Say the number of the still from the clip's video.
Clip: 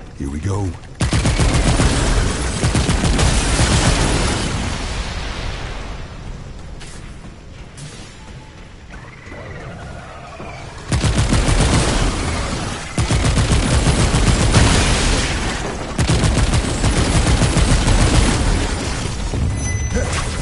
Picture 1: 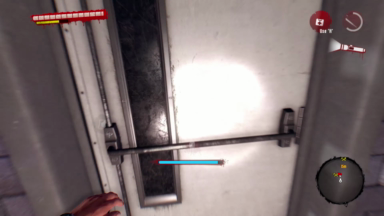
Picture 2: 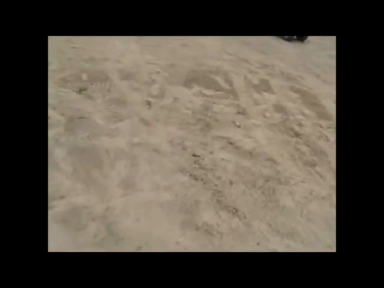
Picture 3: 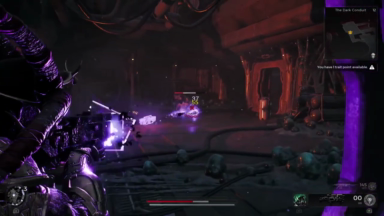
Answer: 3